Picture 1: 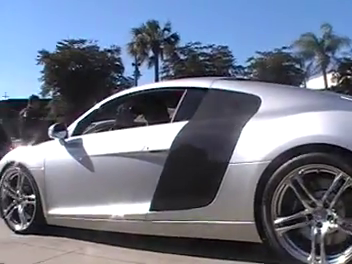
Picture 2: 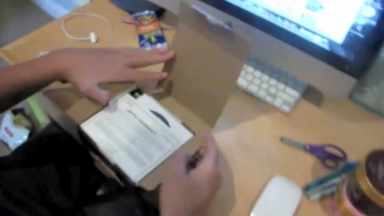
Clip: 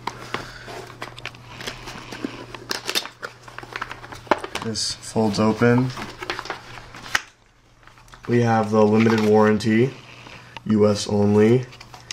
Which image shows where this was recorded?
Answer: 2